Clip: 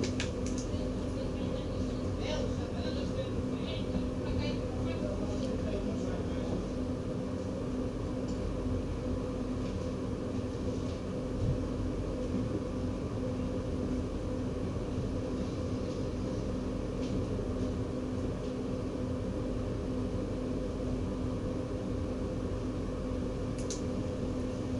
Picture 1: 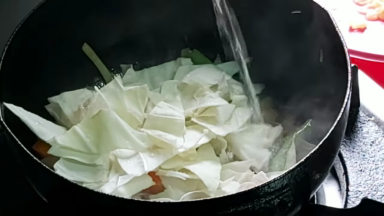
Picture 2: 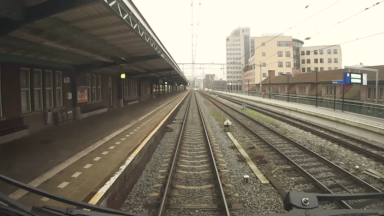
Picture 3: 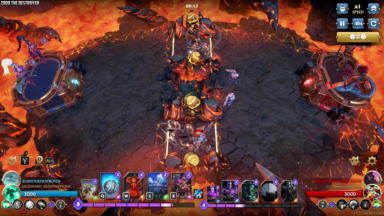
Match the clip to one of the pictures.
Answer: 2